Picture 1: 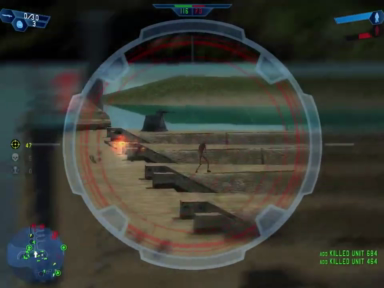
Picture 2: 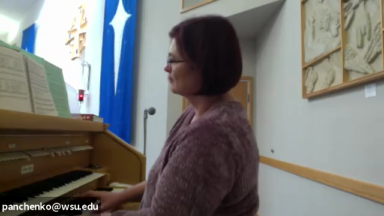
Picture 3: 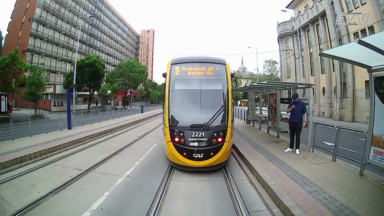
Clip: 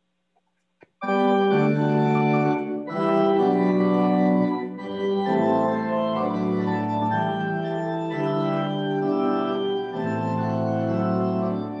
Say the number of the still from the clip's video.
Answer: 2